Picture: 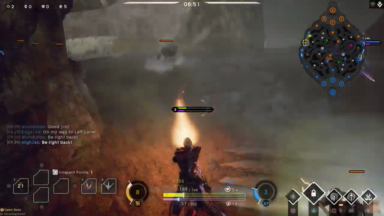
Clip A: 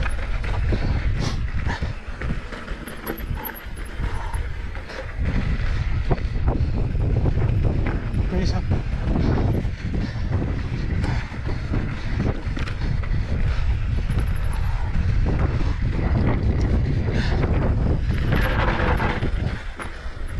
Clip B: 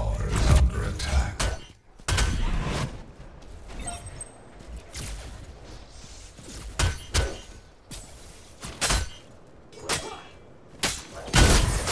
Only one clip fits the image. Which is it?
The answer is B